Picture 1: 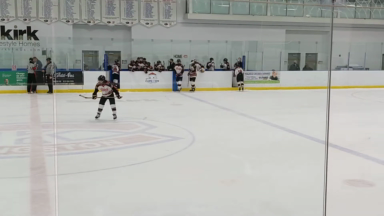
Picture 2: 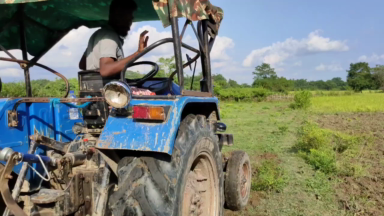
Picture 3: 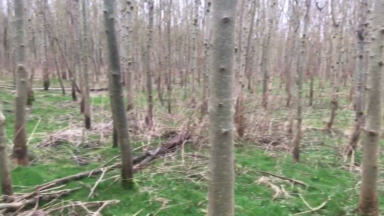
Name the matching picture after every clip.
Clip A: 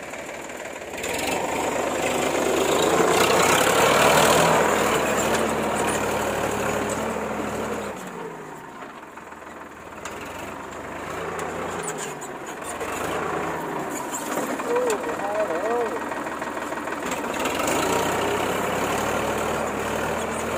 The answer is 2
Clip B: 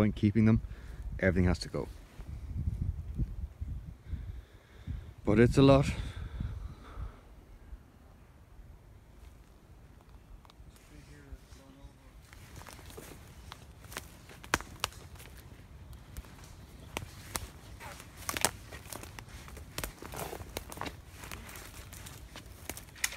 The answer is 3